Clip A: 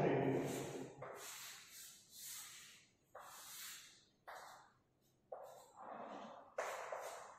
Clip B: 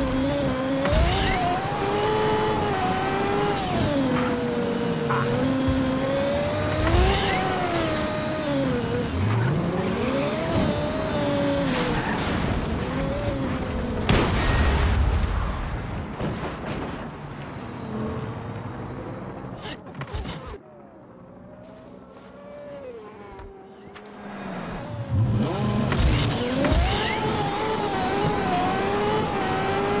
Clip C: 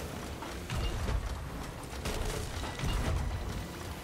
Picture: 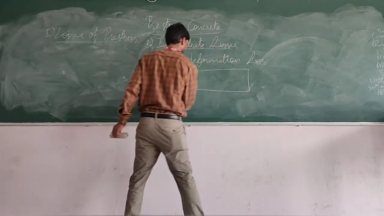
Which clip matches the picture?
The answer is A